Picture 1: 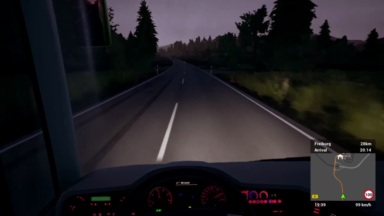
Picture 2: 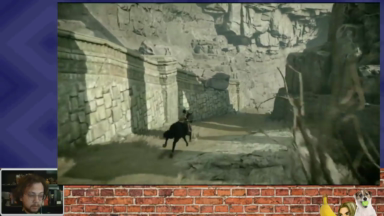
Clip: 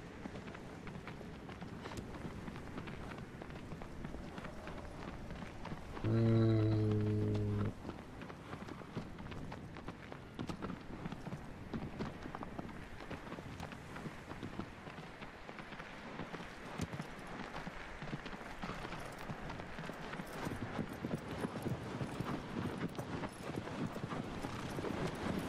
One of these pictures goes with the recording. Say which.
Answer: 2